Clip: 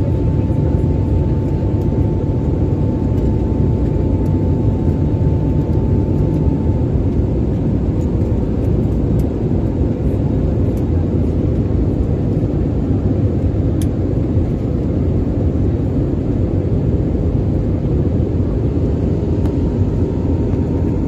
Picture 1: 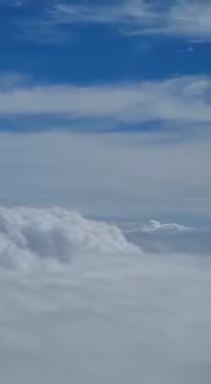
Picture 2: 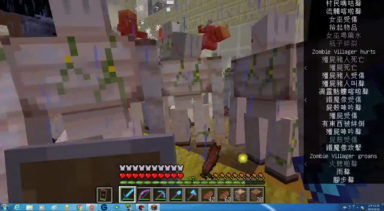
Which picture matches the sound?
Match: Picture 1